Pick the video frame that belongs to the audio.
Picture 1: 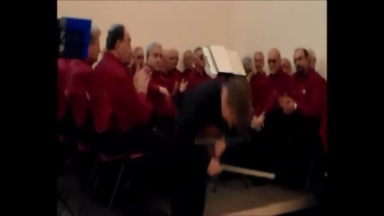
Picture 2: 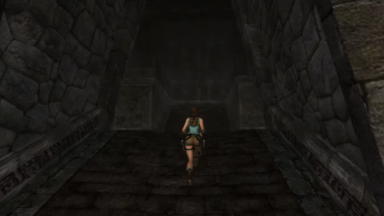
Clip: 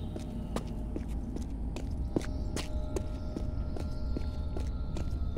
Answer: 2